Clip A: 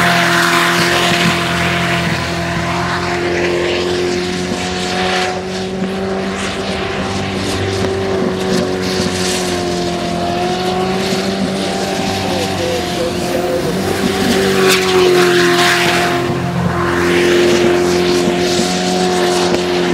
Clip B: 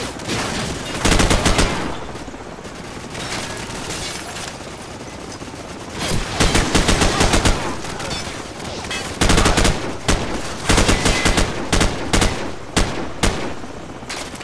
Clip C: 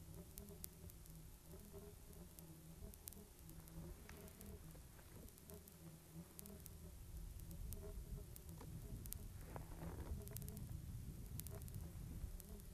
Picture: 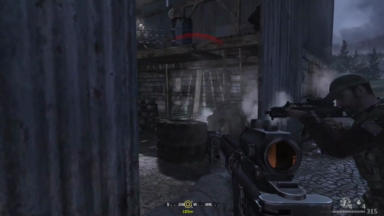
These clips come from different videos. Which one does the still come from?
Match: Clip B